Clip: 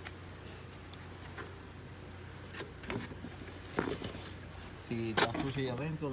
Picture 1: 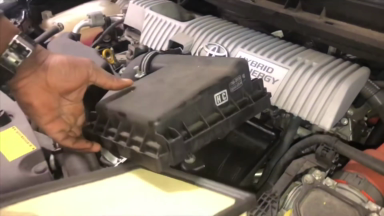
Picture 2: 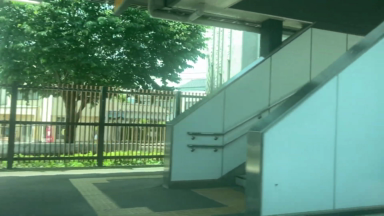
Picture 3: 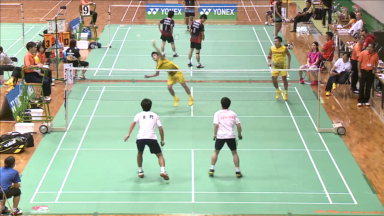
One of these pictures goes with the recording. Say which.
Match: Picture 1